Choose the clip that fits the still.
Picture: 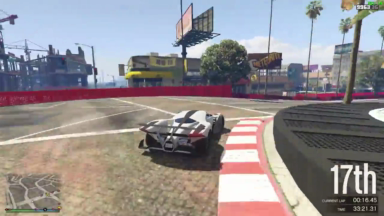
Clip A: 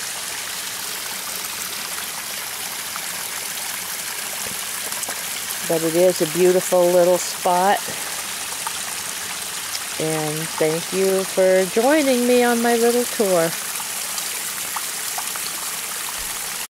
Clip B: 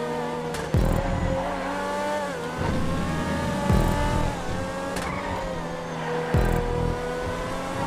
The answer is B